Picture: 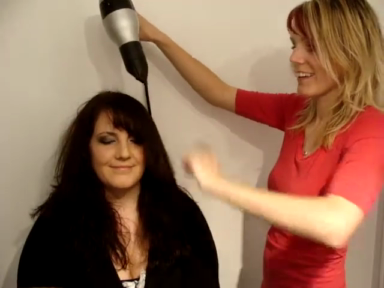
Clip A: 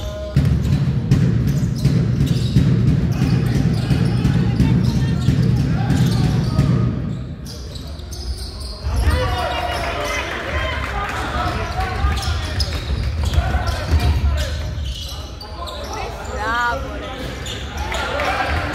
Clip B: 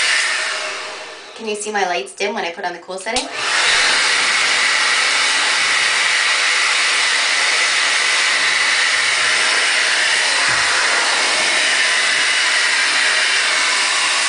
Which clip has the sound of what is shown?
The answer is B